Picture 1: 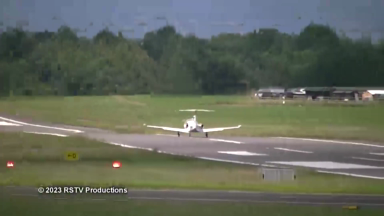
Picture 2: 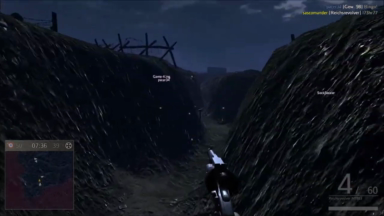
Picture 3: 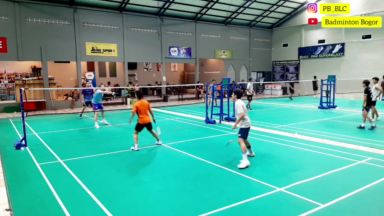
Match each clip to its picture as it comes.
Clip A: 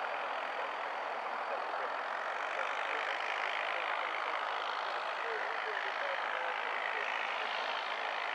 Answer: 1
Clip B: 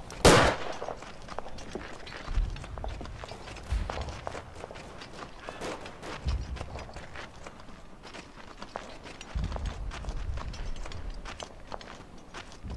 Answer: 2